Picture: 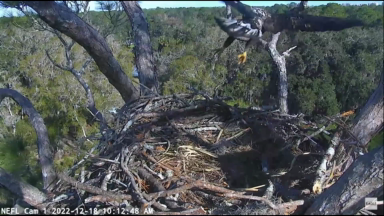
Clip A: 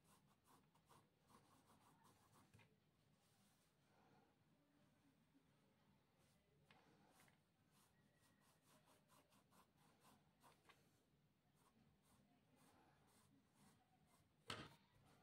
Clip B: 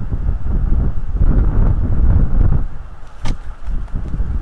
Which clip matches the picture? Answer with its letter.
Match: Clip B